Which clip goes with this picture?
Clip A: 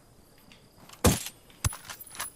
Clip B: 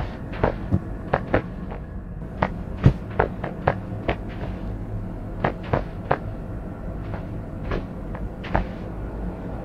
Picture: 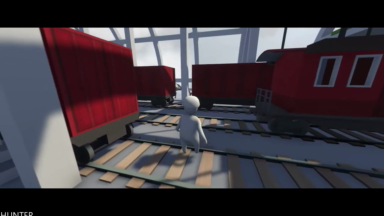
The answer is B